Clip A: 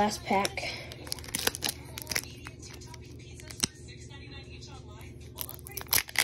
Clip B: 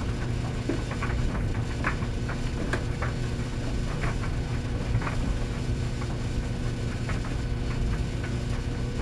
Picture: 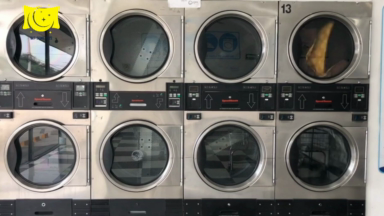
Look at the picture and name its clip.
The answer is B